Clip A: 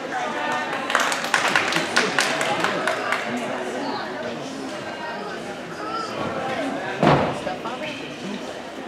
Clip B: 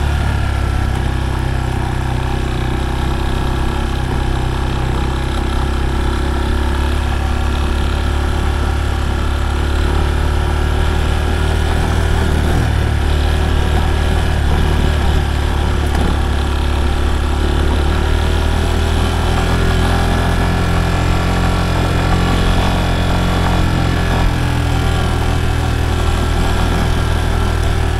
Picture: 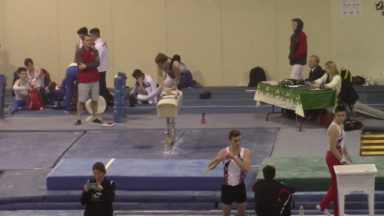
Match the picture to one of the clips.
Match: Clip A